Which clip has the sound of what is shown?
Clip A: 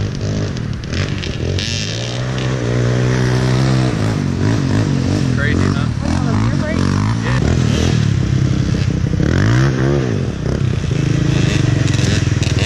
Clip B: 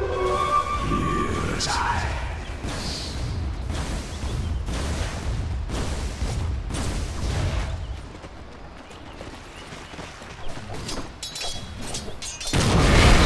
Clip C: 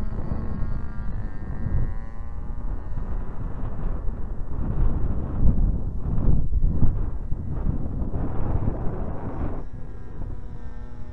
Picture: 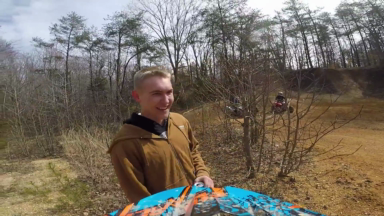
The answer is A